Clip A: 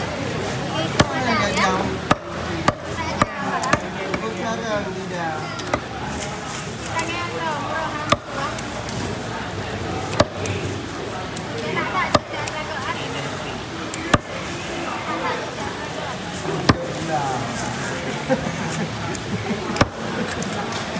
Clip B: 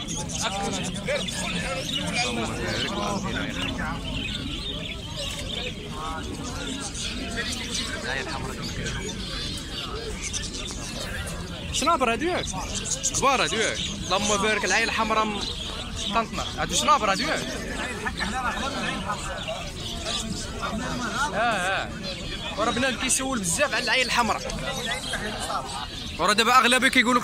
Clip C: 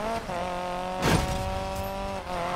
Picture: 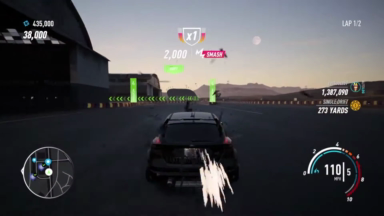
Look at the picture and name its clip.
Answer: C